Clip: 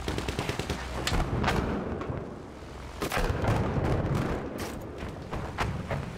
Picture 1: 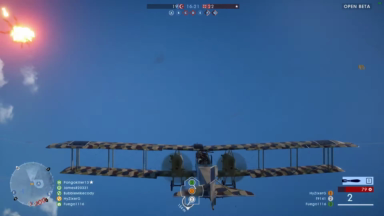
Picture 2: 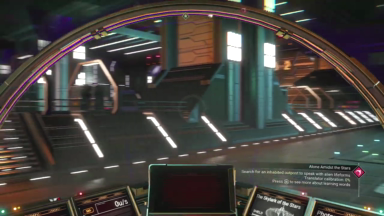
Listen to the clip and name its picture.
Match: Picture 1